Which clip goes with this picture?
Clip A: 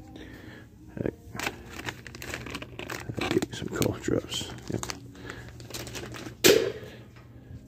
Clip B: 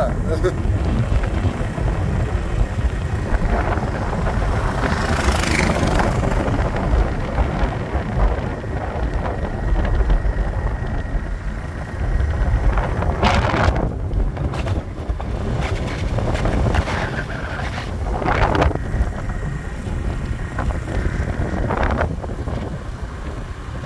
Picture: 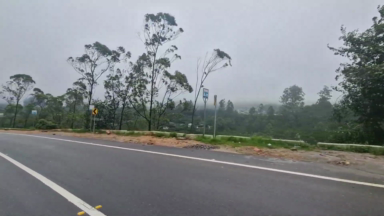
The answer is B